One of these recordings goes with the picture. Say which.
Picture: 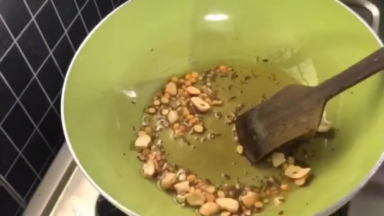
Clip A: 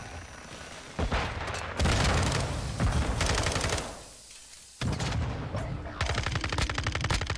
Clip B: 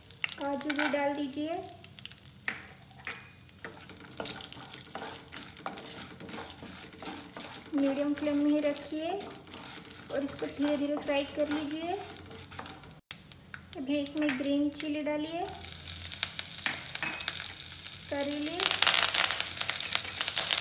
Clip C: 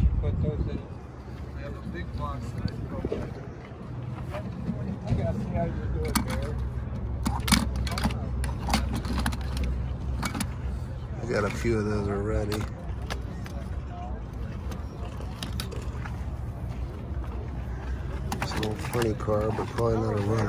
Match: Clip B